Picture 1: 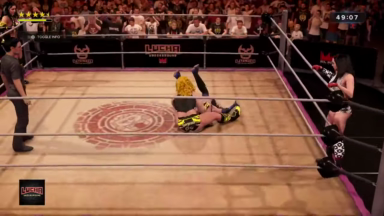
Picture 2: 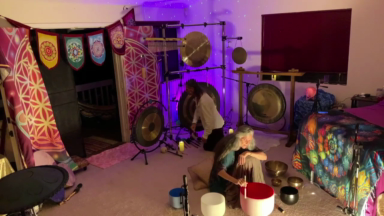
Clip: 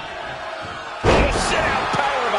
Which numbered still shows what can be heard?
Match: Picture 1